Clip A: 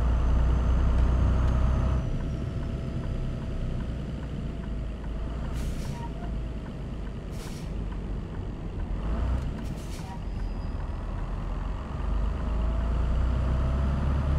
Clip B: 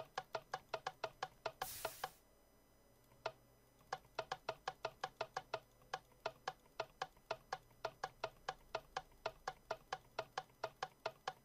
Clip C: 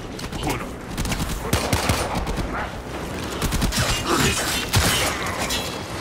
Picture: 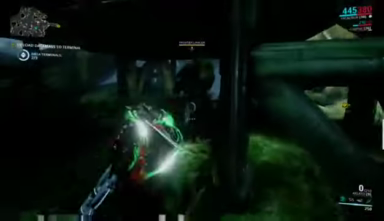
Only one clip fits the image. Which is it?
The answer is C